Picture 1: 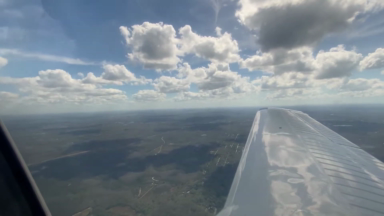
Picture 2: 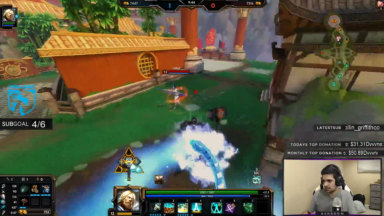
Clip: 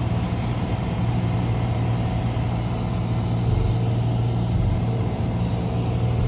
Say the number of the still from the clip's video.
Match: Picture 1